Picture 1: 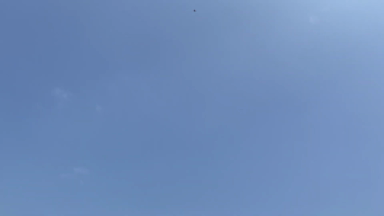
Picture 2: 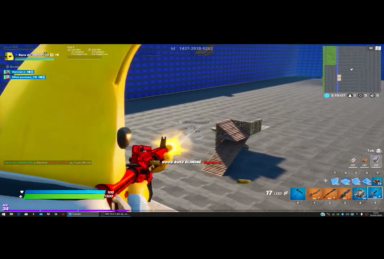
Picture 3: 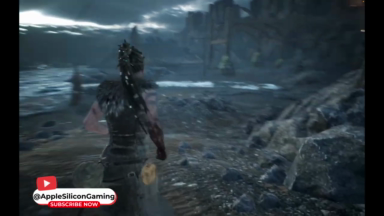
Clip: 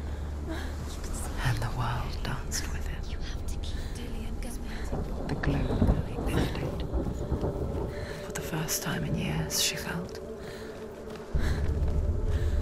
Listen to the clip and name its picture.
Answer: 3